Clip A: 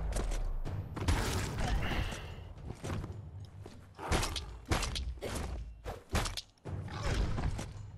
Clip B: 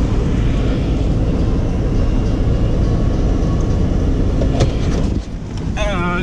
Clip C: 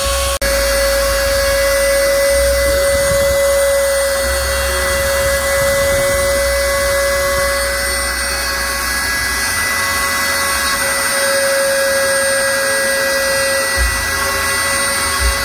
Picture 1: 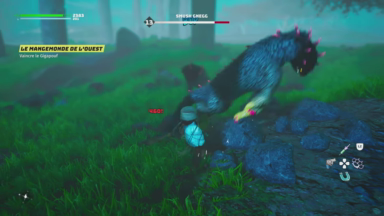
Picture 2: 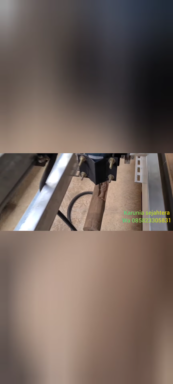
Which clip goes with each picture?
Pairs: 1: A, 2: C